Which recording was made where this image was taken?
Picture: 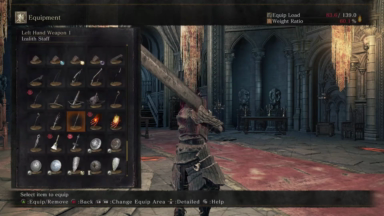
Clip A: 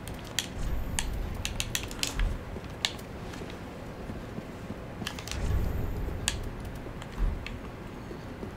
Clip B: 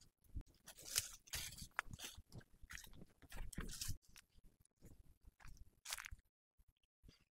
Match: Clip A